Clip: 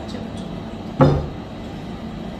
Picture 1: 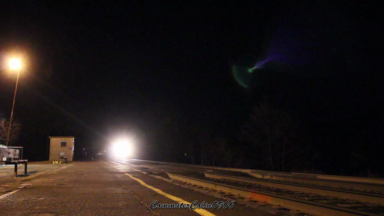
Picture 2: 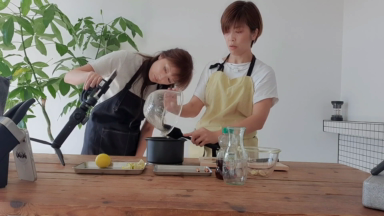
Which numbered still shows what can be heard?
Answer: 2